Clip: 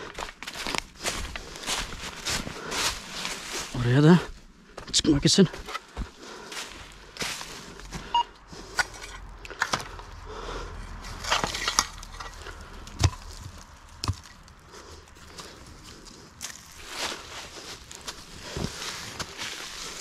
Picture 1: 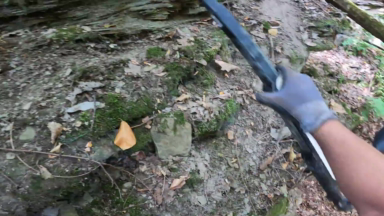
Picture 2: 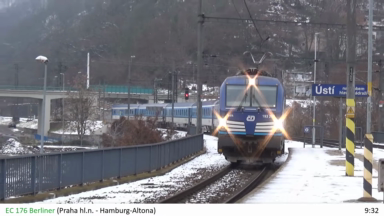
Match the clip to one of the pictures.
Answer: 1